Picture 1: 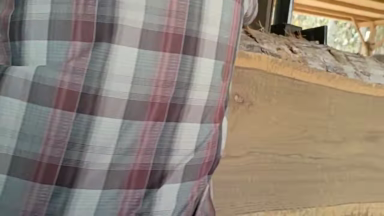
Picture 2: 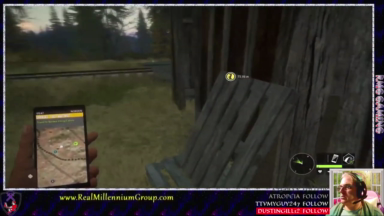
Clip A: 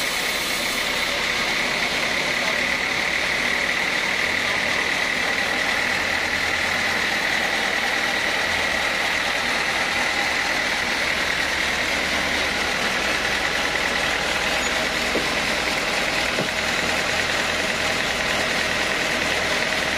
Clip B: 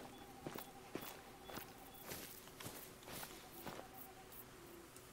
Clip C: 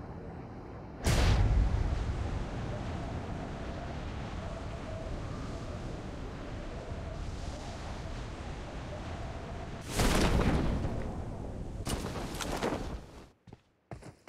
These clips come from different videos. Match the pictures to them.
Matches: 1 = A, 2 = B